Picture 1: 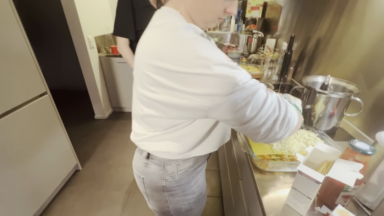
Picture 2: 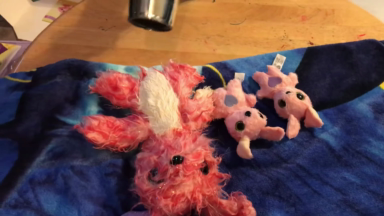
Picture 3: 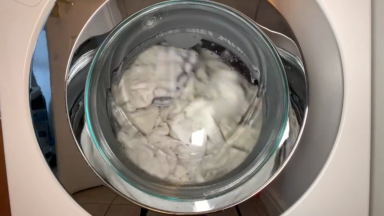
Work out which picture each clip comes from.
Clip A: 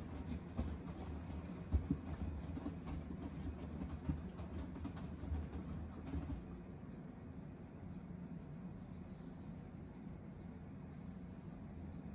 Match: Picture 3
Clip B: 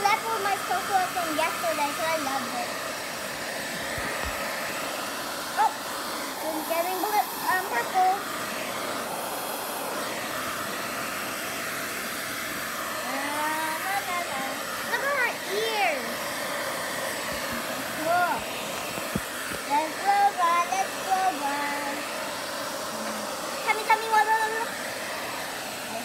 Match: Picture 2